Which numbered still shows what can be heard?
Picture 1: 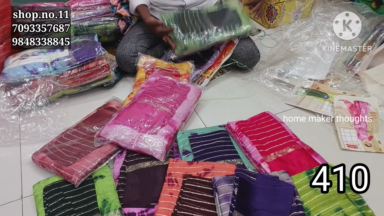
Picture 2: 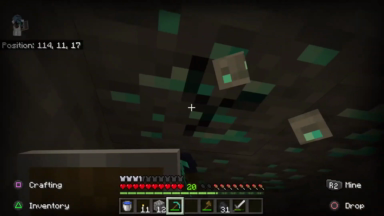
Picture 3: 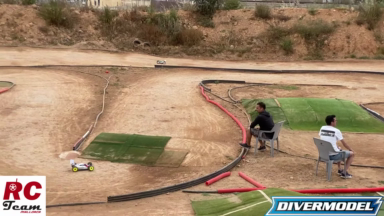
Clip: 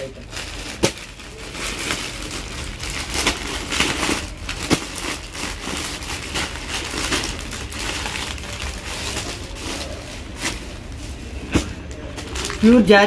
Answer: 1